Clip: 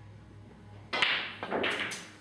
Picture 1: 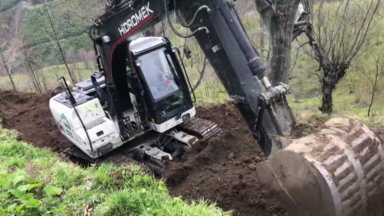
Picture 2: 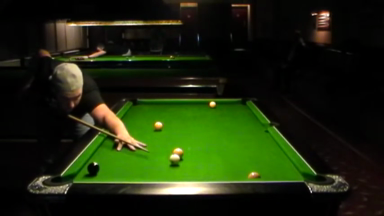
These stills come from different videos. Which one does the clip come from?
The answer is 2